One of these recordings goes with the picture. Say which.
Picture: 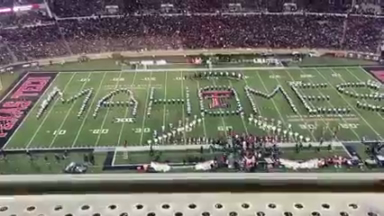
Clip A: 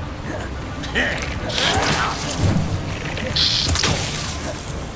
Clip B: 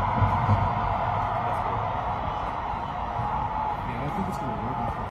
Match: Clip B